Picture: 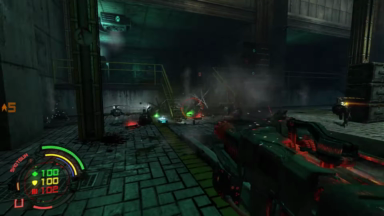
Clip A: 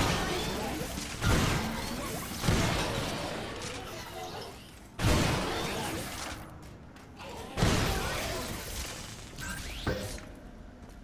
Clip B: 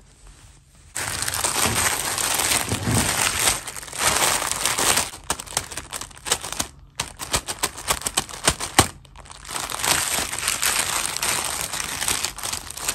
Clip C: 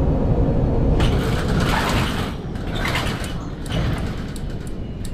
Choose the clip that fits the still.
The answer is A